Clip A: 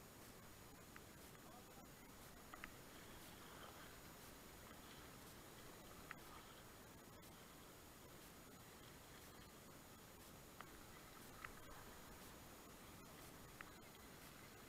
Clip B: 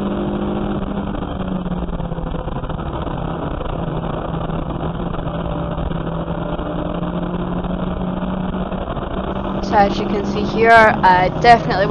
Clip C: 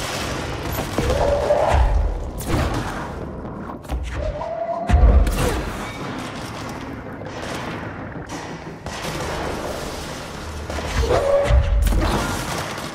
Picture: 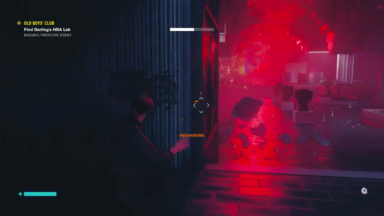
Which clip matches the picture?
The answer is C